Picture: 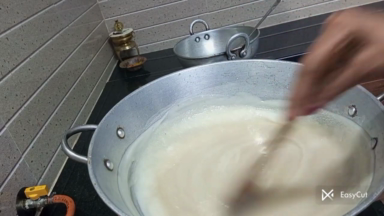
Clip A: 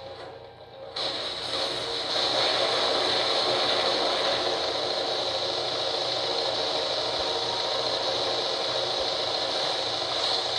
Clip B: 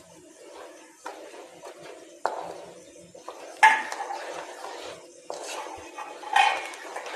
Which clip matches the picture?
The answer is B